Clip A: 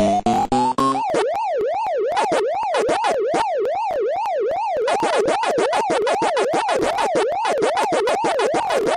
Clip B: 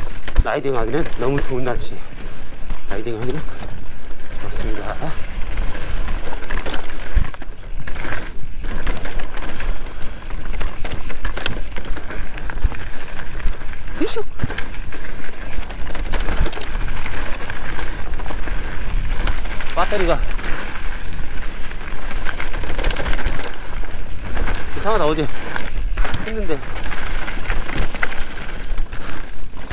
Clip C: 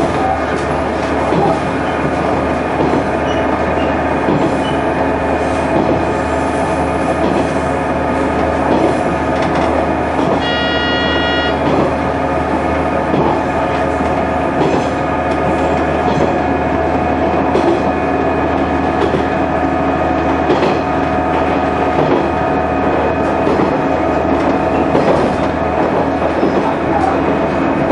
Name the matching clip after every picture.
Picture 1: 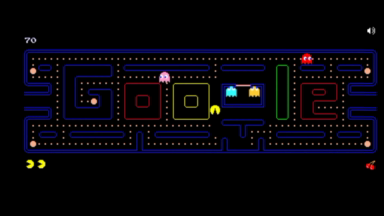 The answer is A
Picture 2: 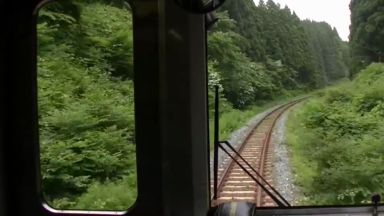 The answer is C